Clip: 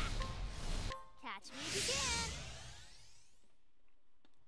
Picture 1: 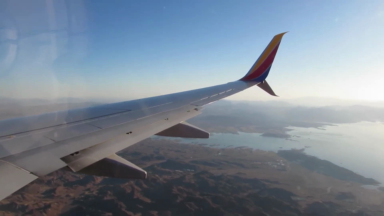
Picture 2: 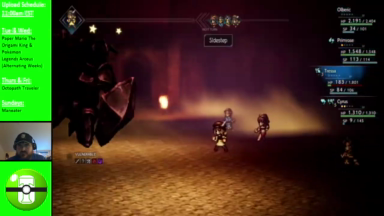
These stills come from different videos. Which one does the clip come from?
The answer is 2